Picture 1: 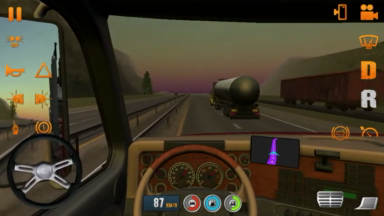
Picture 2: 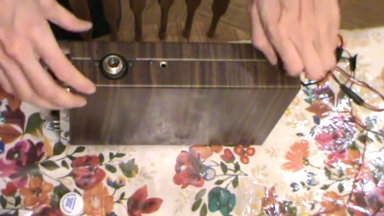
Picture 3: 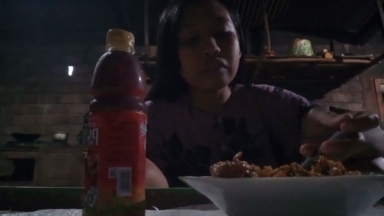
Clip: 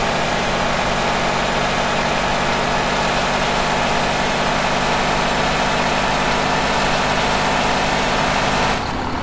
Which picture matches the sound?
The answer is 1